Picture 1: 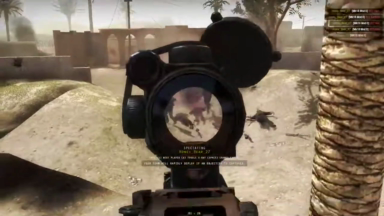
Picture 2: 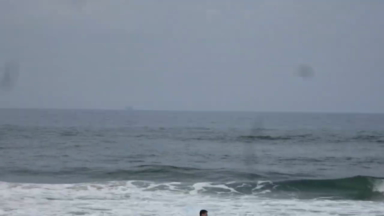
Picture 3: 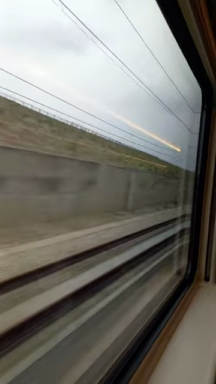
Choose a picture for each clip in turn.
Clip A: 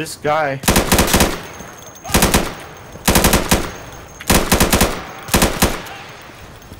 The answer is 1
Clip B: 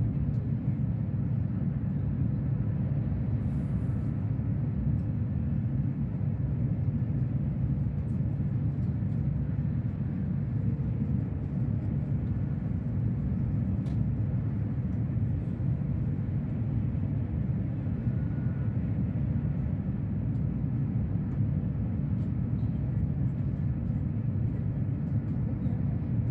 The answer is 3